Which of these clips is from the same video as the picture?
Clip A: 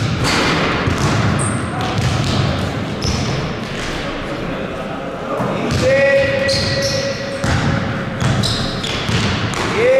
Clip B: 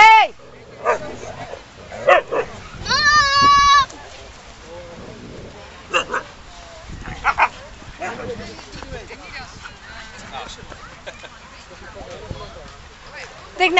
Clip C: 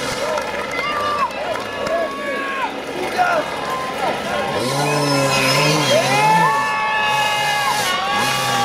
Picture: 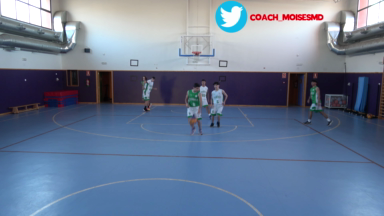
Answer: A